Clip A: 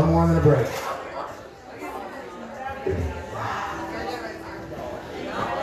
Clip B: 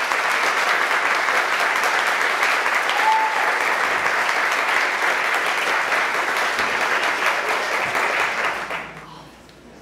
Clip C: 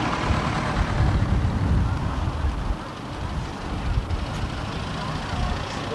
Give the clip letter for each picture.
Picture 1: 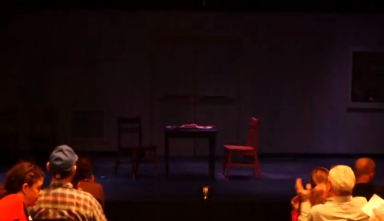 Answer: B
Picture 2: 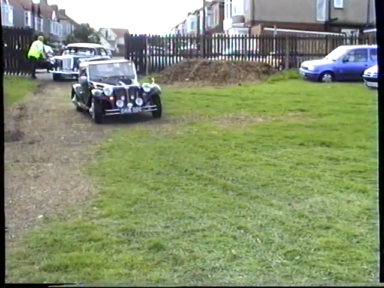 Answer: C